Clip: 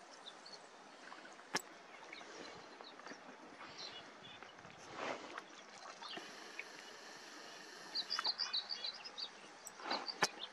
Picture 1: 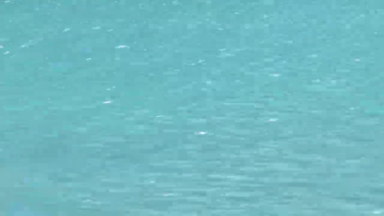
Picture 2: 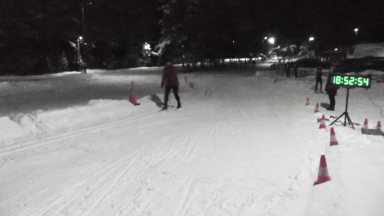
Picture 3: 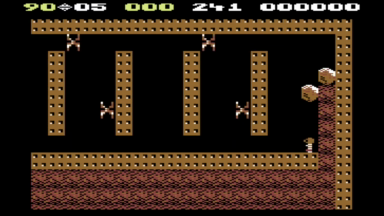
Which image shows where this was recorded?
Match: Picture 1